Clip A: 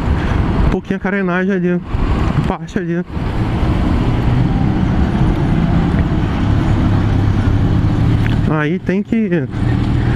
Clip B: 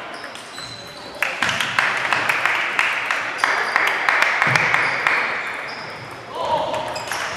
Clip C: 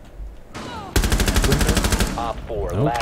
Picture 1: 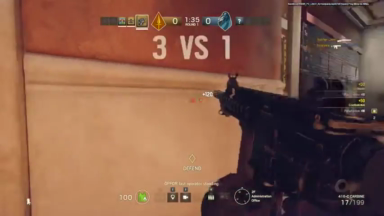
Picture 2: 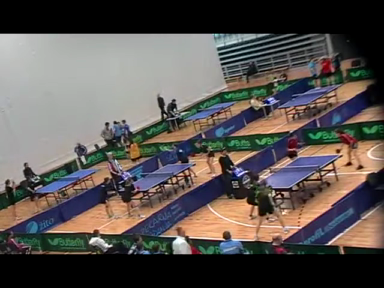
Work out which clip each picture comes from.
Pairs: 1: C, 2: B